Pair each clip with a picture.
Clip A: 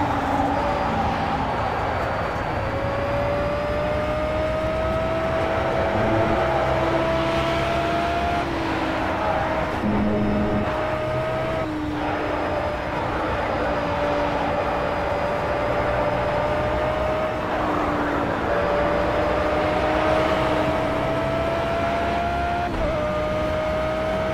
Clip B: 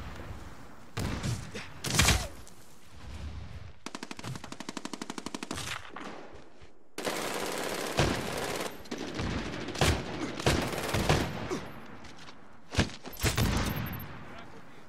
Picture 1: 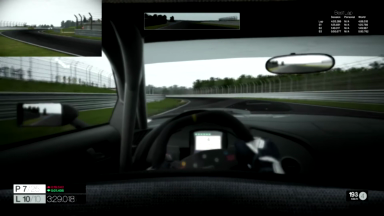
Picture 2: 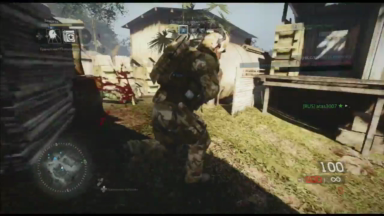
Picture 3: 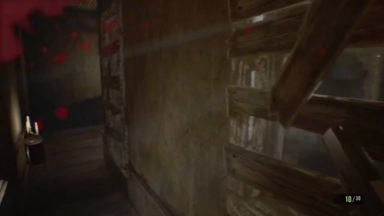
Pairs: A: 1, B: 2